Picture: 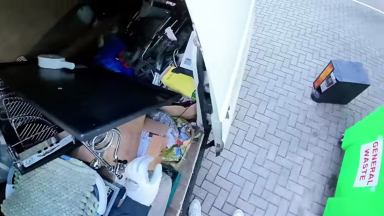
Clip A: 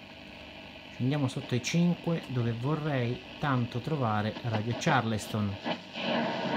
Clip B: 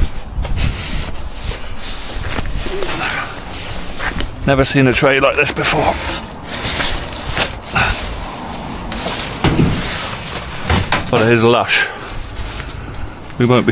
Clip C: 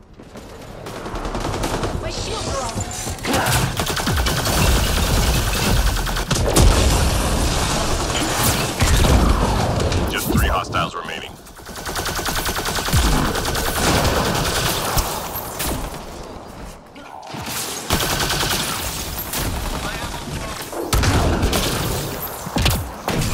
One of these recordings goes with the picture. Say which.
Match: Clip B